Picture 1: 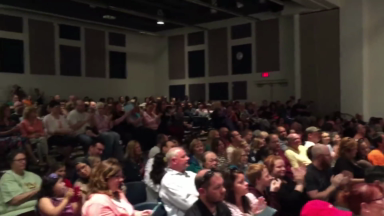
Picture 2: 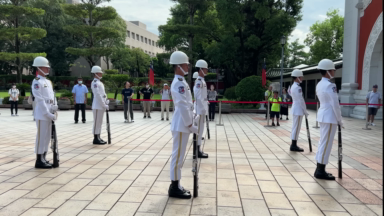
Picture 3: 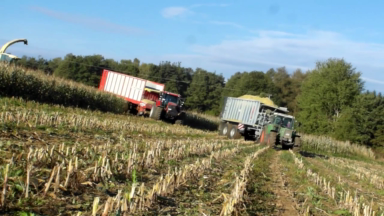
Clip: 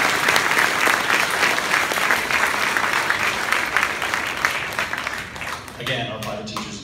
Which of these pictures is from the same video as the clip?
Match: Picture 1